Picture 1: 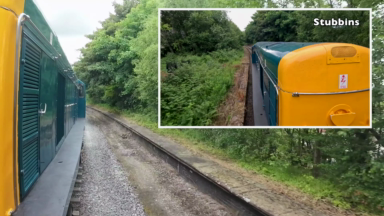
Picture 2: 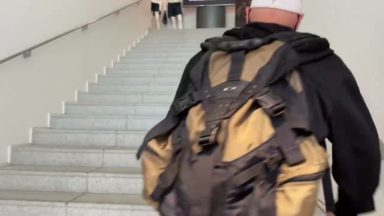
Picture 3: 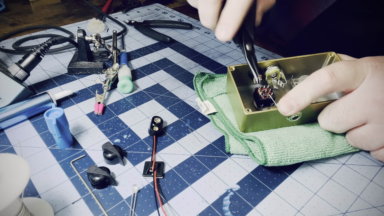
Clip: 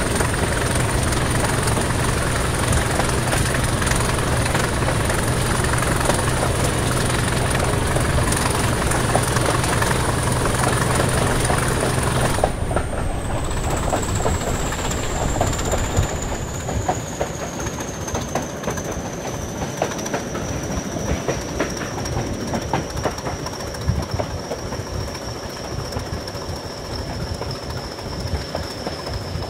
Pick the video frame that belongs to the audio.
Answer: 1